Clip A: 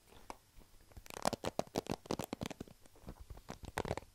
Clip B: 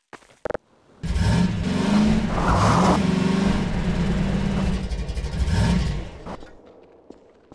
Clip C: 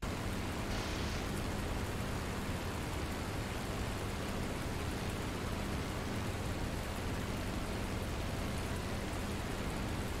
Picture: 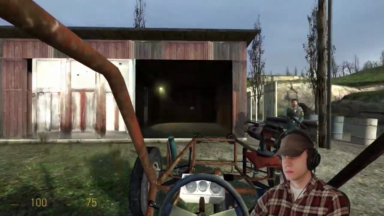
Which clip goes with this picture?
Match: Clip B